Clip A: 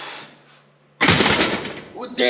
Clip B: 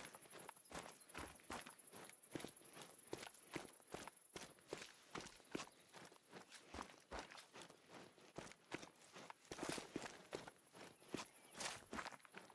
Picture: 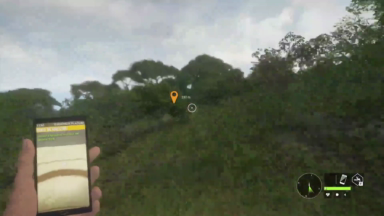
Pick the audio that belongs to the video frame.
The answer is B